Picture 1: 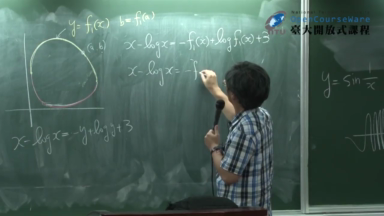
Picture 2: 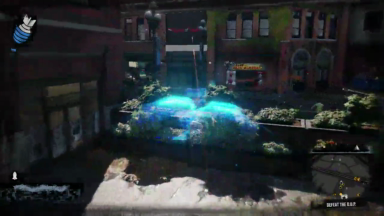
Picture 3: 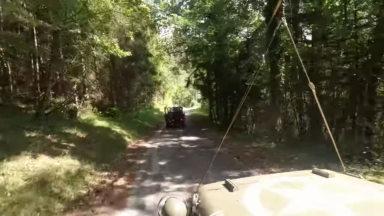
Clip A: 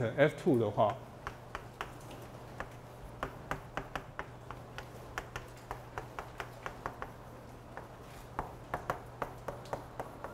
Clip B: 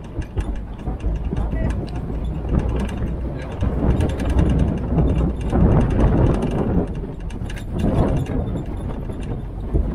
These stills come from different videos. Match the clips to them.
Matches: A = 1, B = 3